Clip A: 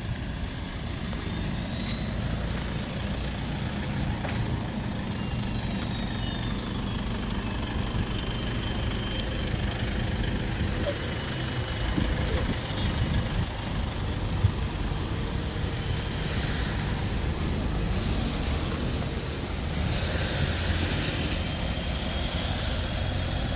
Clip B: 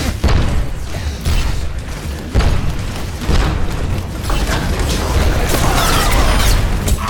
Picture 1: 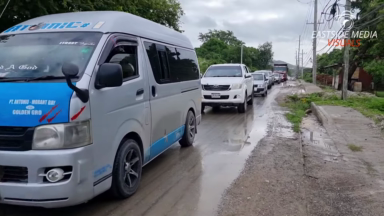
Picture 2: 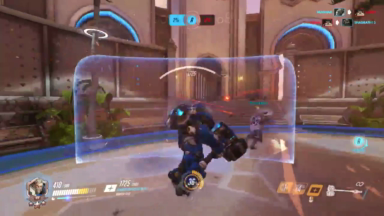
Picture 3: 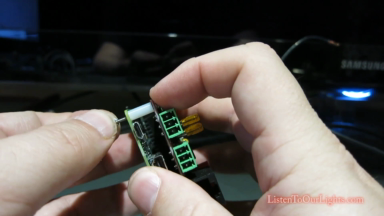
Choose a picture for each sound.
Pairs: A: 1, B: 2